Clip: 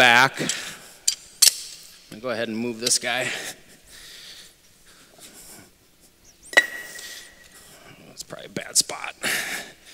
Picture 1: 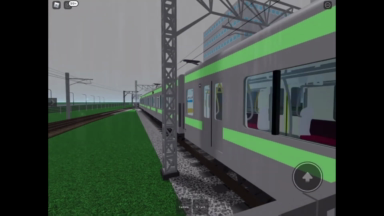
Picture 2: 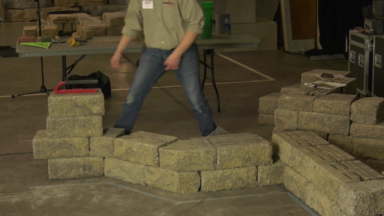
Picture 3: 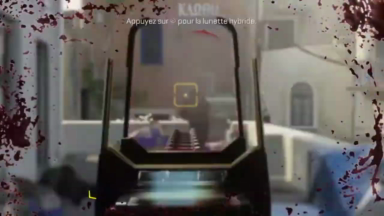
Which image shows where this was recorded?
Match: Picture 2